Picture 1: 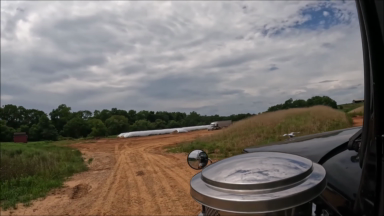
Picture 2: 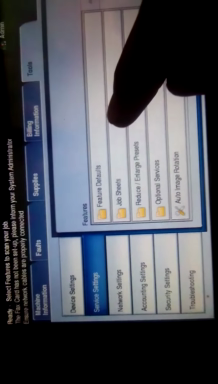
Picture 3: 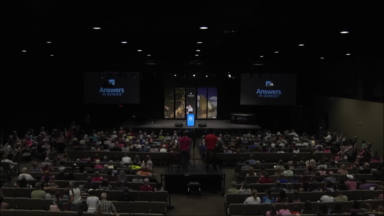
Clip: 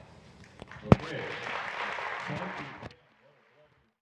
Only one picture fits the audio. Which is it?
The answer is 3